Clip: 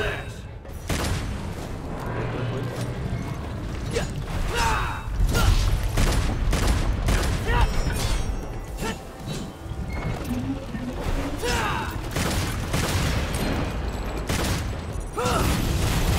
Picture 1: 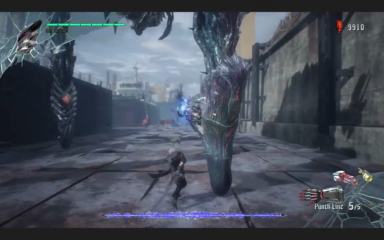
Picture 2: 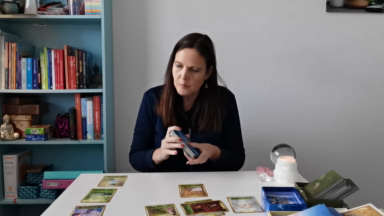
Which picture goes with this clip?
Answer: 1